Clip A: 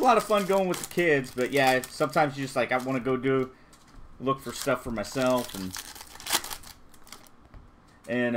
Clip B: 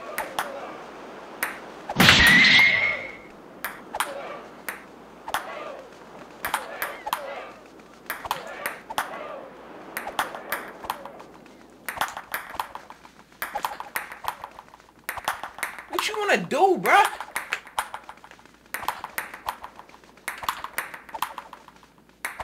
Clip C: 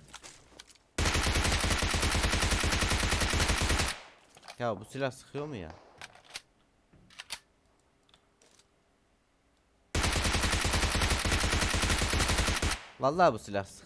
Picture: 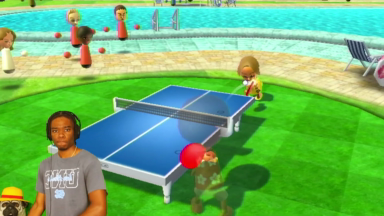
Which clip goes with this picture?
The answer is B